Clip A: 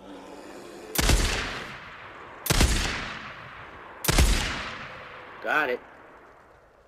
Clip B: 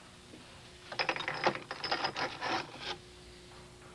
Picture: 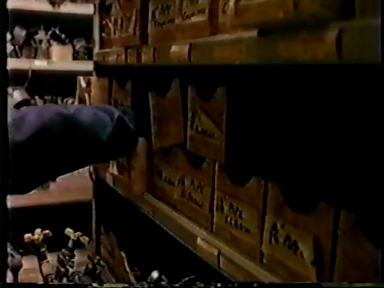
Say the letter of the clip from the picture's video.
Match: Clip B